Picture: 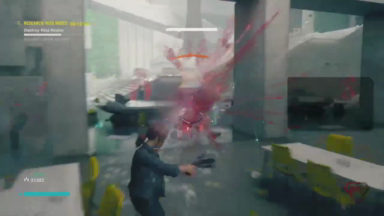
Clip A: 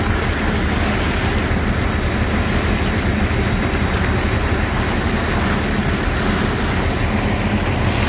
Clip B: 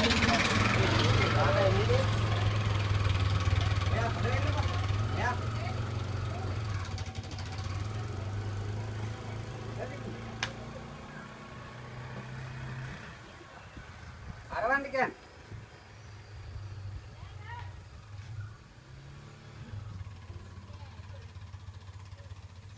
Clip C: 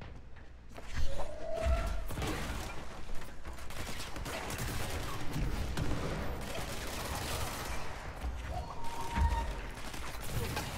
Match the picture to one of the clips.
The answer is C